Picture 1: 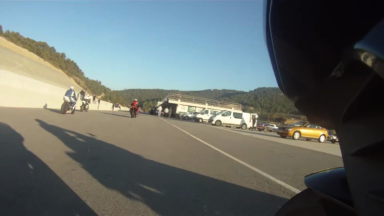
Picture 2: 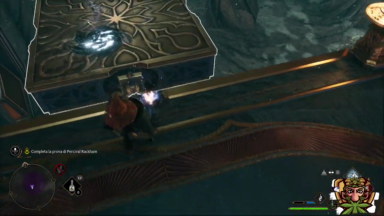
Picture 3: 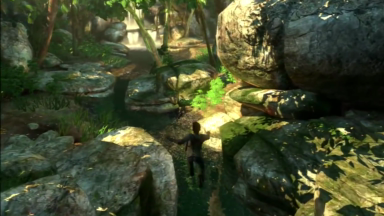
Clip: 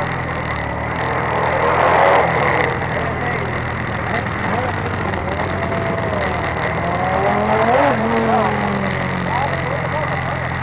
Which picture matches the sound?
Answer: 1